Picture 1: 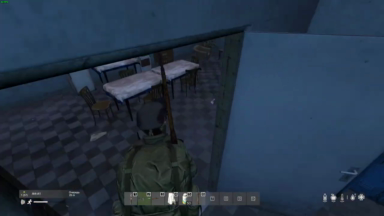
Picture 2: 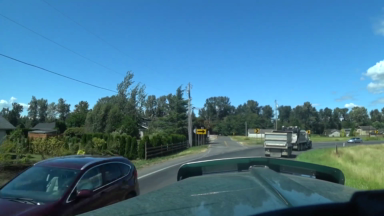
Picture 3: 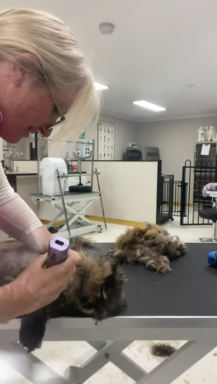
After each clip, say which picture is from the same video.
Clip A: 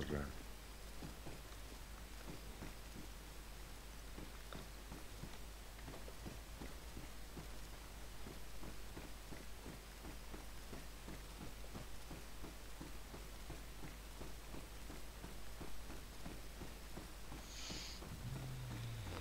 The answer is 1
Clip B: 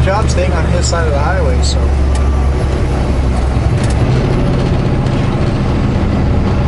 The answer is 2